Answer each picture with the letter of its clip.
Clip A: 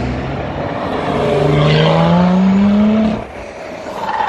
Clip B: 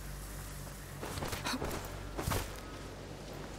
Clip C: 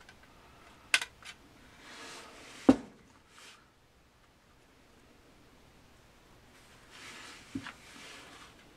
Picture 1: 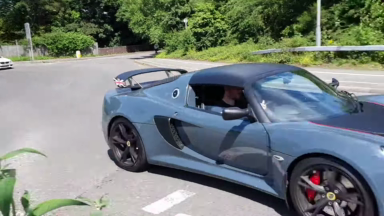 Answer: A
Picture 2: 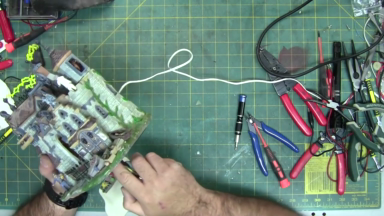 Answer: C